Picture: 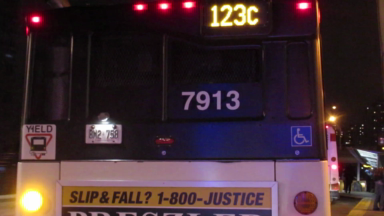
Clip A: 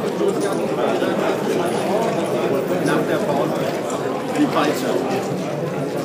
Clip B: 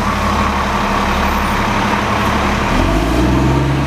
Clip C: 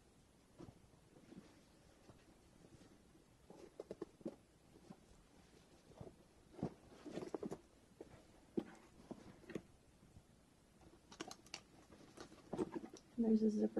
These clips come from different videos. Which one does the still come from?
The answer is B